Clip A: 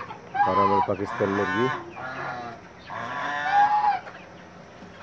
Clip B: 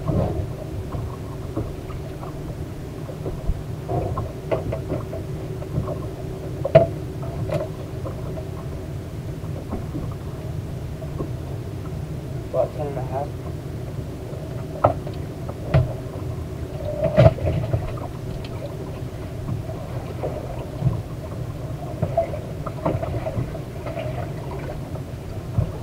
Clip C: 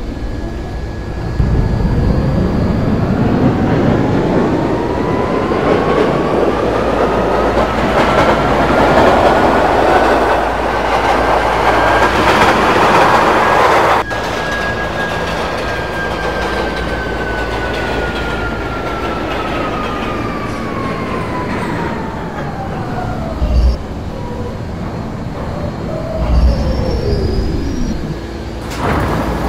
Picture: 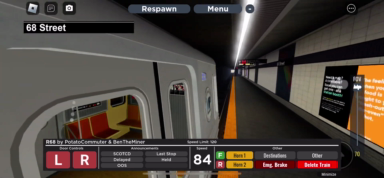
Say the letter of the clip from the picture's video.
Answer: C